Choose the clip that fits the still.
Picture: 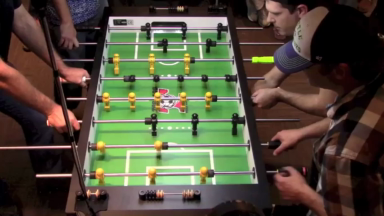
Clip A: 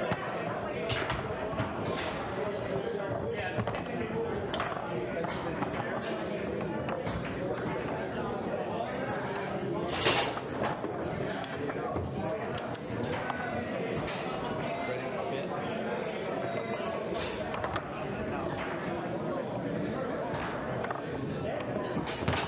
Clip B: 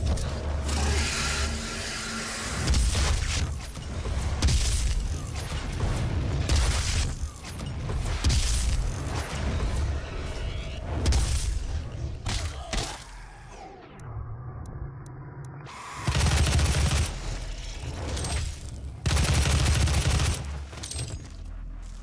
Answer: A